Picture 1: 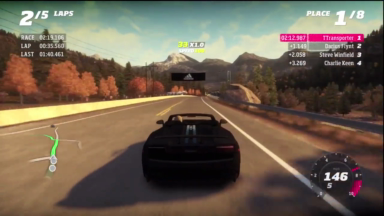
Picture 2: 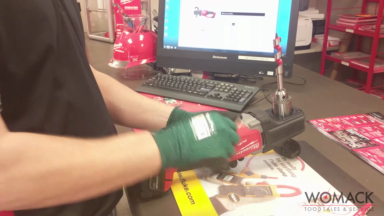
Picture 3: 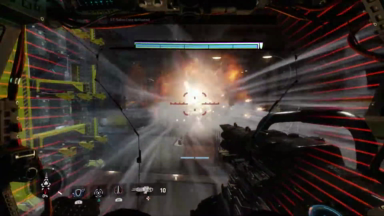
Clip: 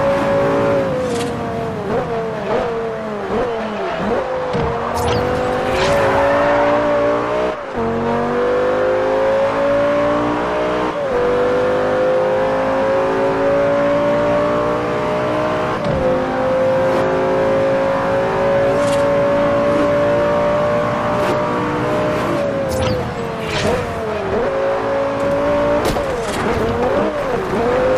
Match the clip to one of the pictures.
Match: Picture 1